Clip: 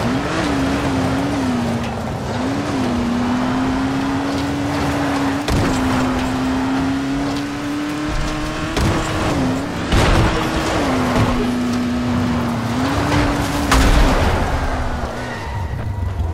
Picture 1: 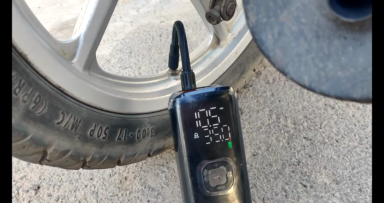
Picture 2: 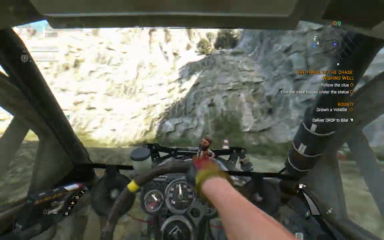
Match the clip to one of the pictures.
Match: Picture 2